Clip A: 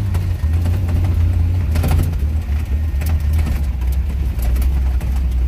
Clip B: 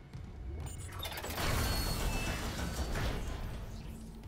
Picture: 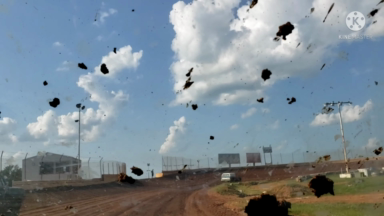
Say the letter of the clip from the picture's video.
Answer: A